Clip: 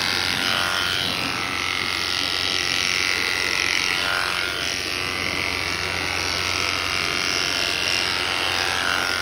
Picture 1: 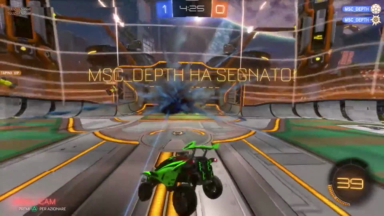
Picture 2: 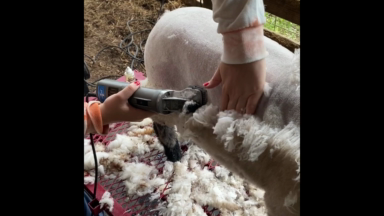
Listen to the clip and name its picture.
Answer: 2